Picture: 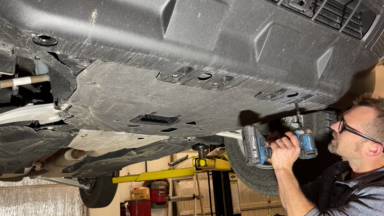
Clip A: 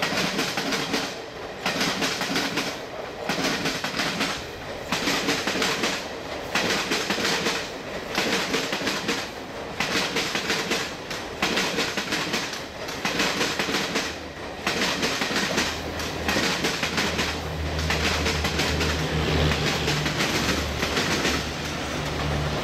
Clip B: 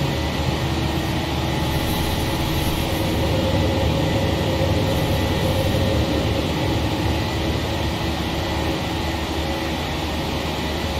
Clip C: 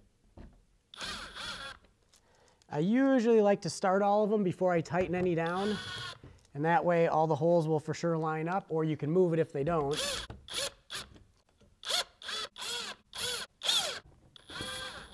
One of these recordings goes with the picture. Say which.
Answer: C